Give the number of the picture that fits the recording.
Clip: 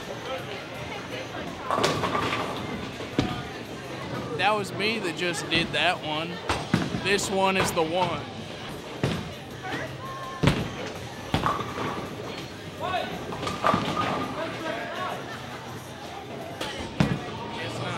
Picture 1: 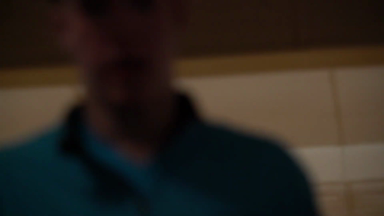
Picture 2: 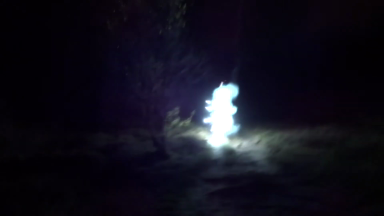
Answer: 1